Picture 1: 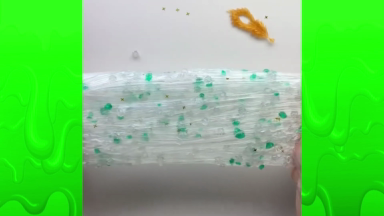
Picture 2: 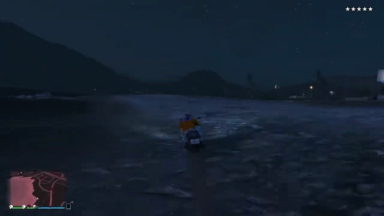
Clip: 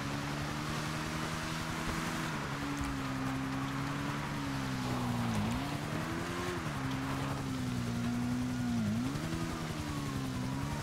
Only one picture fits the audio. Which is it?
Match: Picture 2